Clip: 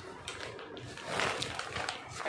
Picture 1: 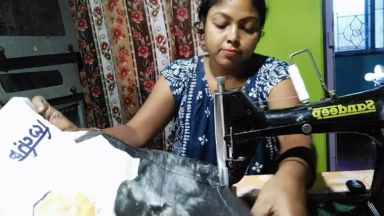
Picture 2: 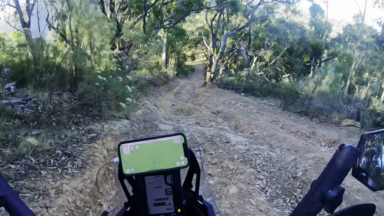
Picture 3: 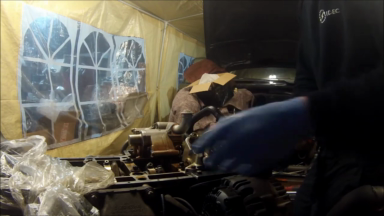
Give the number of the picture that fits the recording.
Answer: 1